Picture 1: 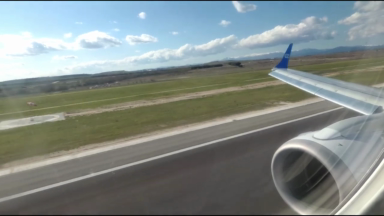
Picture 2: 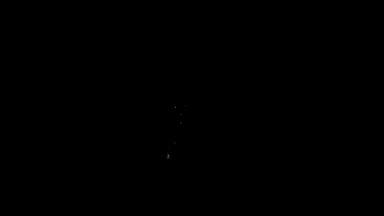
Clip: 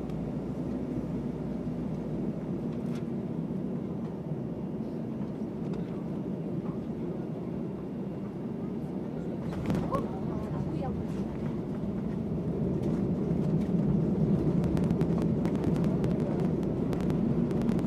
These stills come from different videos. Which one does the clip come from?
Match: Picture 1